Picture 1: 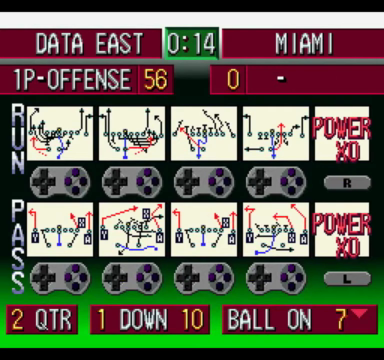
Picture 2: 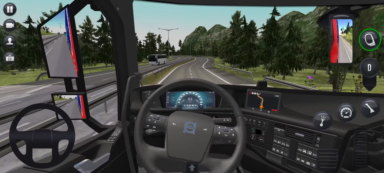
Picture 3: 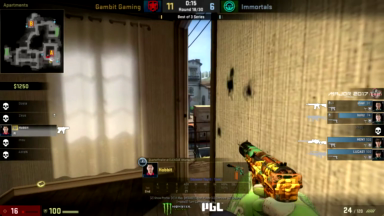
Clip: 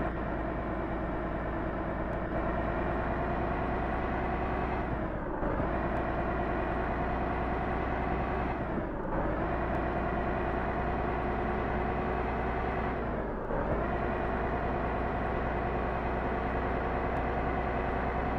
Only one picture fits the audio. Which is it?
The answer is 2